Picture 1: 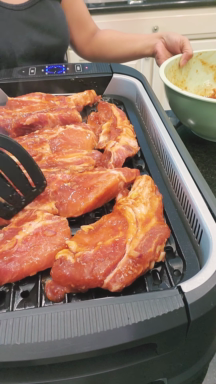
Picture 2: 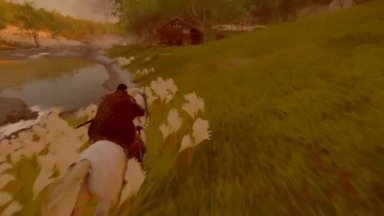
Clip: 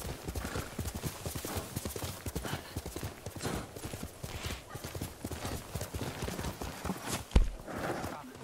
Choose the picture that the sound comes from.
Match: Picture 2